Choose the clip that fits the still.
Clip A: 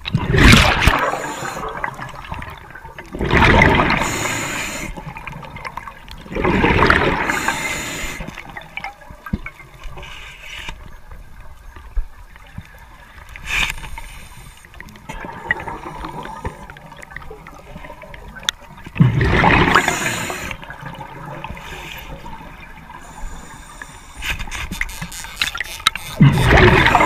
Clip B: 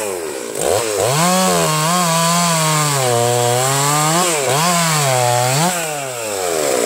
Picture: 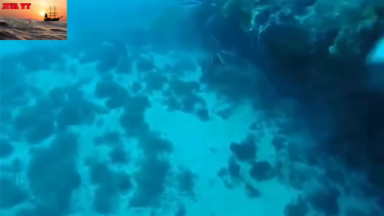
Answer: A